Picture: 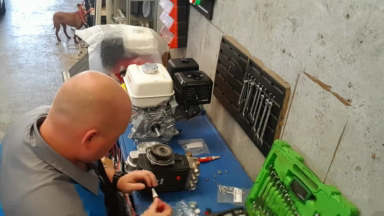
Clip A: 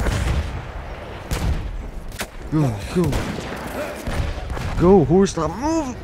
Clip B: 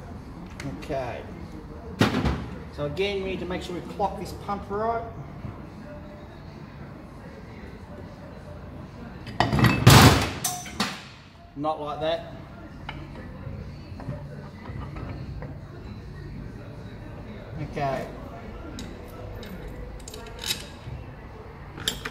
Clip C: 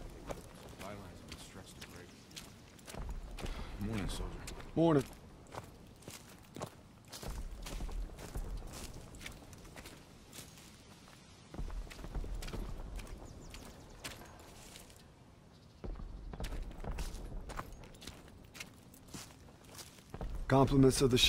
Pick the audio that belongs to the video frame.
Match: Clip B